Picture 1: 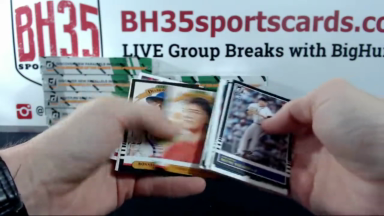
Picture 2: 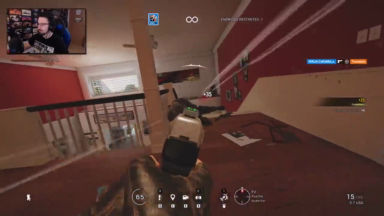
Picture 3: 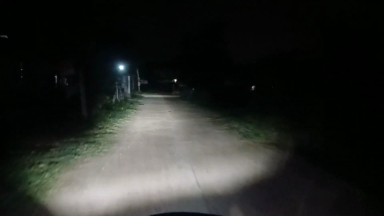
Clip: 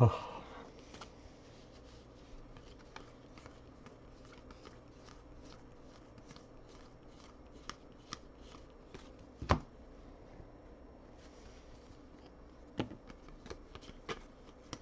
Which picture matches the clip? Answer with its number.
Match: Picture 1